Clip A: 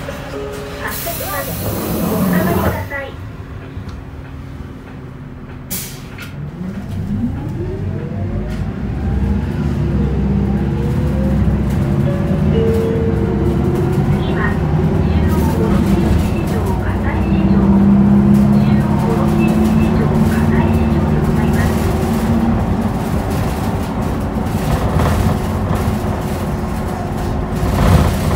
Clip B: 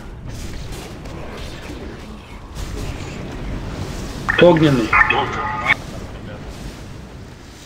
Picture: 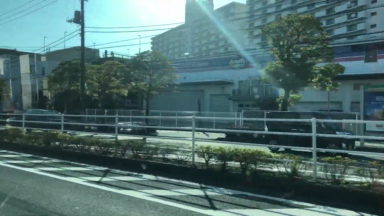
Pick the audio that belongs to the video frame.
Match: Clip A